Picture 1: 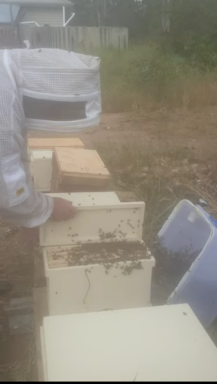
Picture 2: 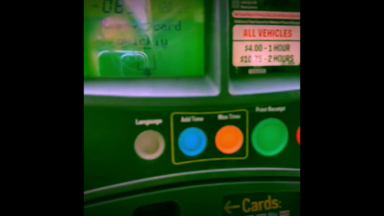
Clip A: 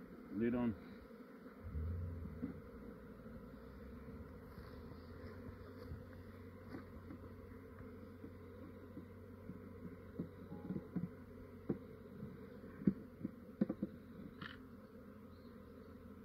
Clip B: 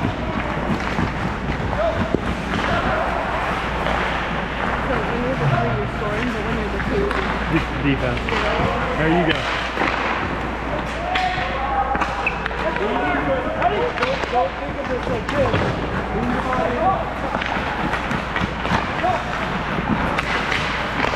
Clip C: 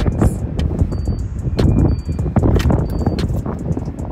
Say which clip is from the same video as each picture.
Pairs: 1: A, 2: C